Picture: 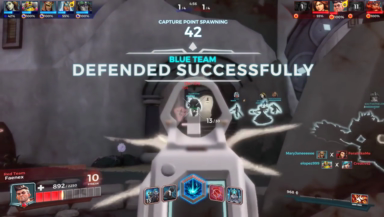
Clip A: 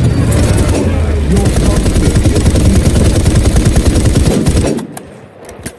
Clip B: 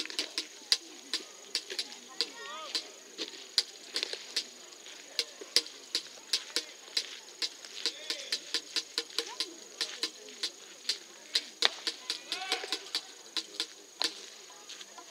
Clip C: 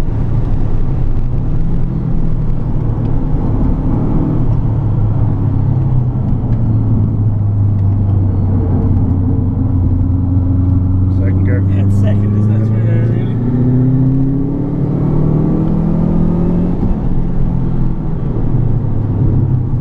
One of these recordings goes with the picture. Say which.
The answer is A